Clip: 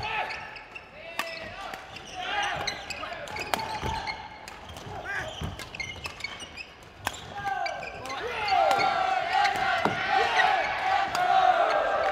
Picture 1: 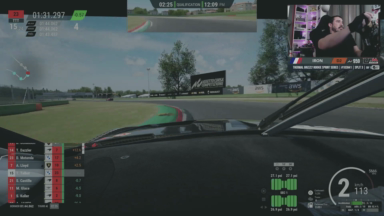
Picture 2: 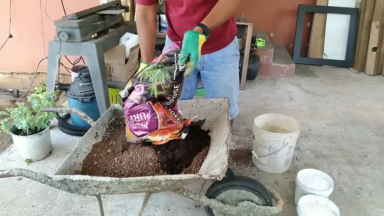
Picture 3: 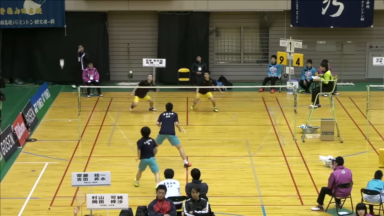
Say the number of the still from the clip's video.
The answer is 3